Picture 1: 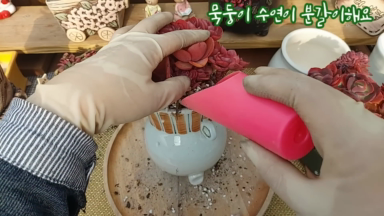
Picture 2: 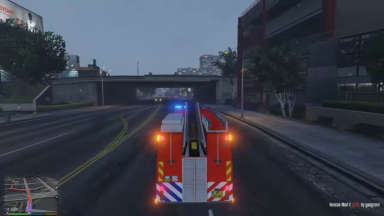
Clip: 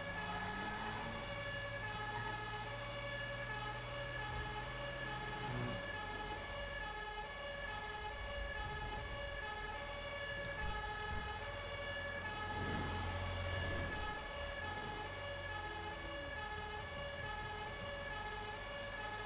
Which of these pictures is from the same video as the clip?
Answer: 2